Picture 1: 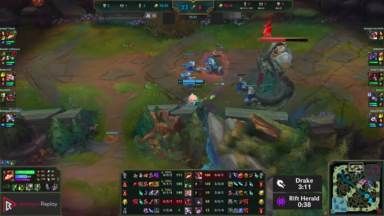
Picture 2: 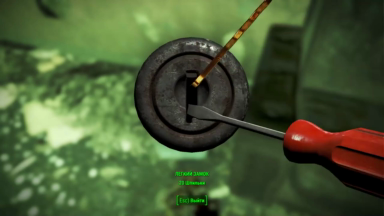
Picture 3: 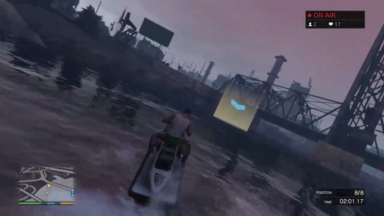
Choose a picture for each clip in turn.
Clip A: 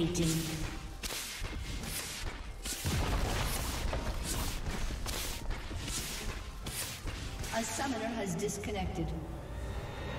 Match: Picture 1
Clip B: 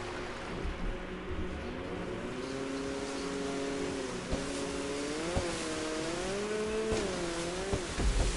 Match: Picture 3